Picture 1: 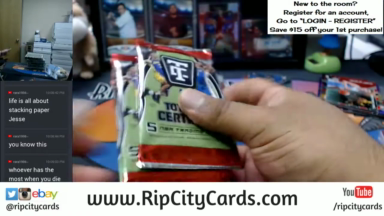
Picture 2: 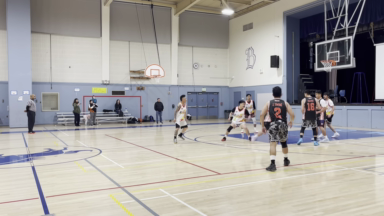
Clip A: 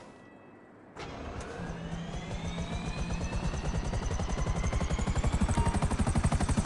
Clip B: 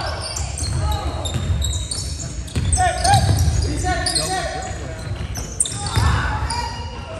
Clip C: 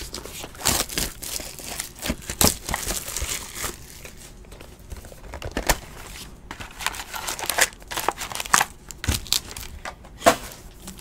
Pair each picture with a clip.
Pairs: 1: C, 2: B